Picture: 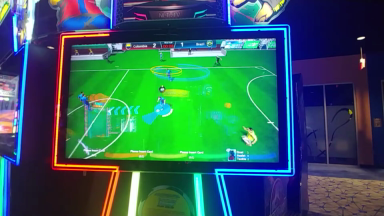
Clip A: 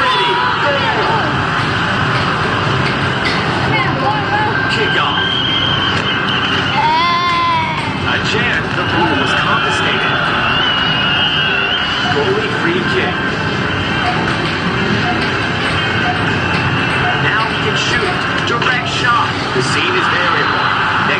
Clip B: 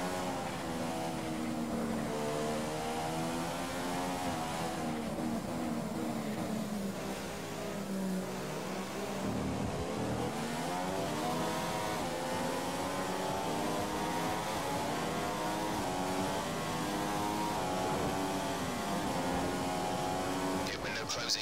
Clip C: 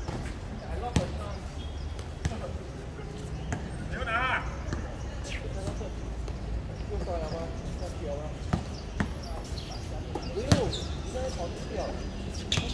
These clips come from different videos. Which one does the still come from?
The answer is A